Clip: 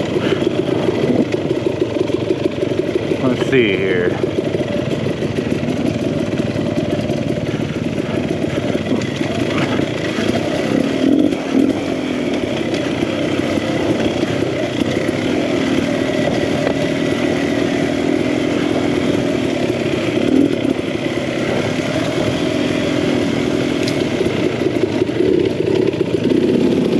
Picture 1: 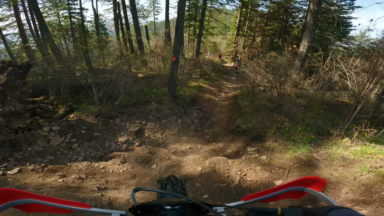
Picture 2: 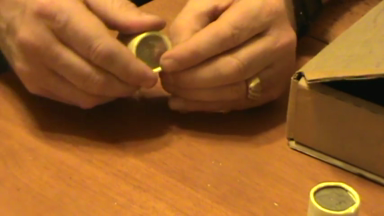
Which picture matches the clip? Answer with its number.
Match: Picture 1